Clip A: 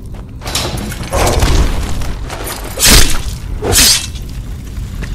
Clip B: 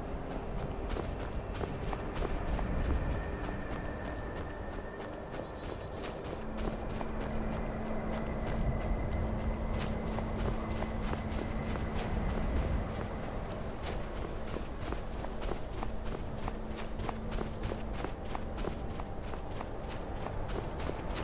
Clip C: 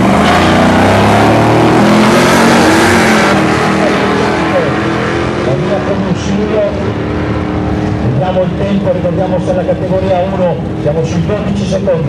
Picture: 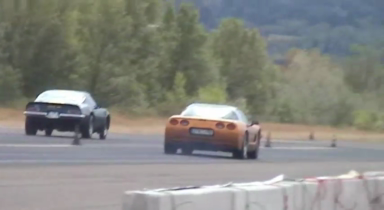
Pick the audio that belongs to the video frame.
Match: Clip C